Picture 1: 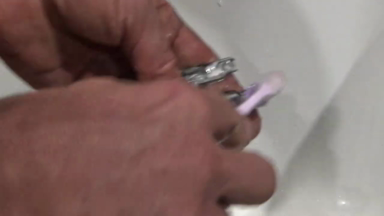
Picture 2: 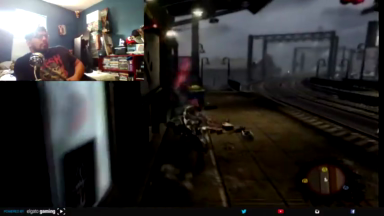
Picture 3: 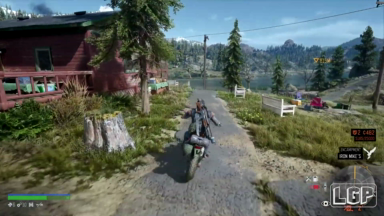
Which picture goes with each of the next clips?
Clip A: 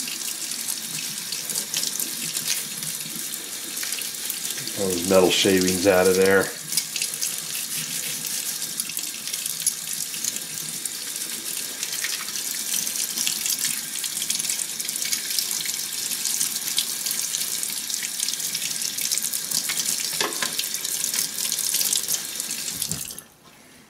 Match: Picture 1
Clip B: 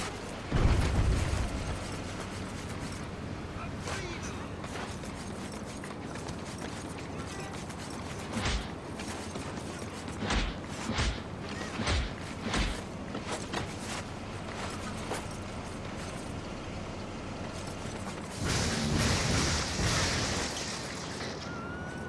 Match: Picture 2